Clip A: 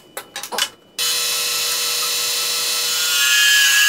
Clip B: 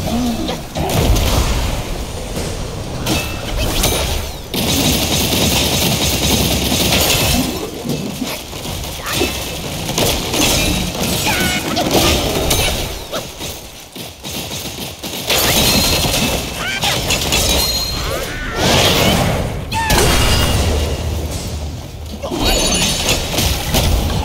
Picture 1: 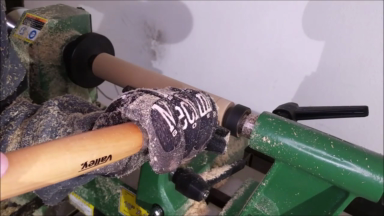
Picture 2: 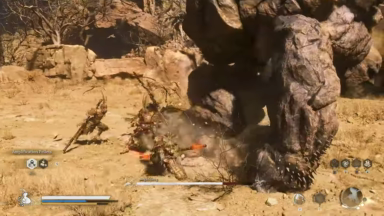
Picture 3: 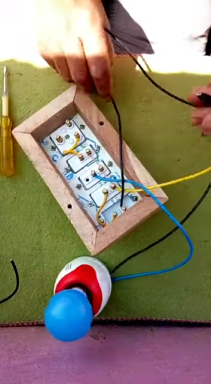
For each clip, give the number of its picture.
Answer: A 1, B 2